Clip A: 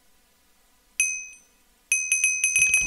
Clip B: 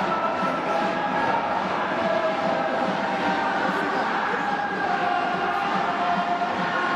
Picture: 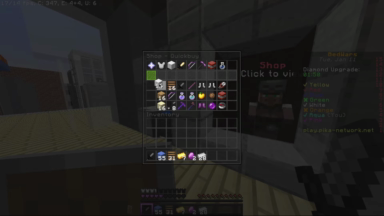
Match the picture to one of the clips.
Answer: A